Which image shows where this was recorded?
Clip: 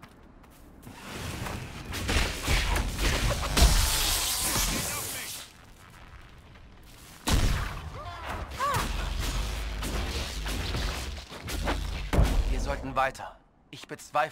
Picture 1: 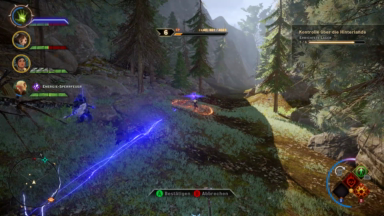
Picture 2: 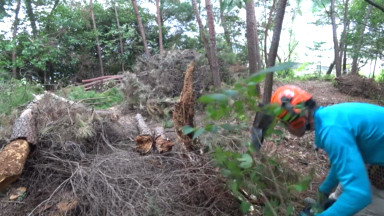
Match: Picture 1